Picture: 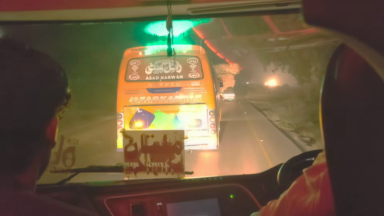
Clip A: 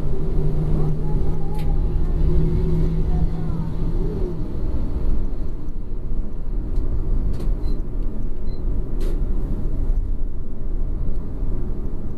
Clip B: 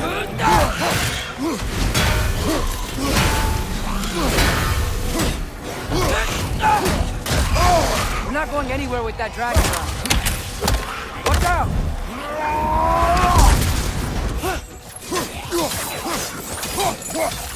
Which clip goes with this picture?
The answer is A